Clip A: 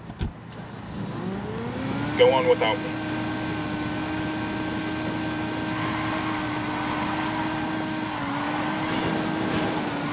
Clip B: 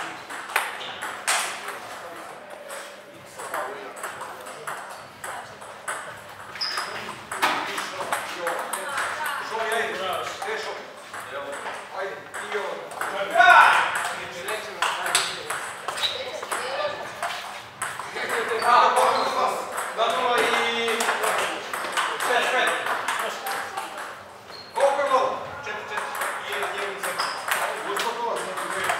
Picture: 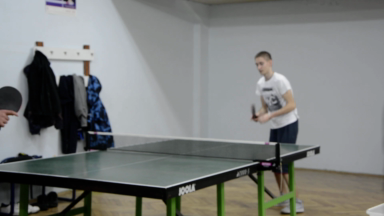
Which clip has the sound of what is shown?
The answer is B